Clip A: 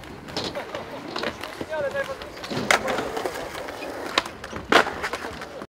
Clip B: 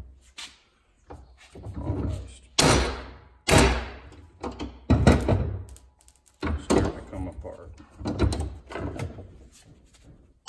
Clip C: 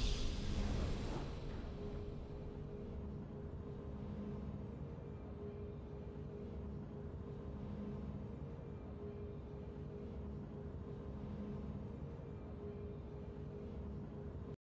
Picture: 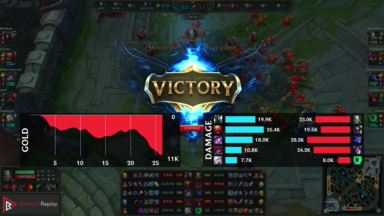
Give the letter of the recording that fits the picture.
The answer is C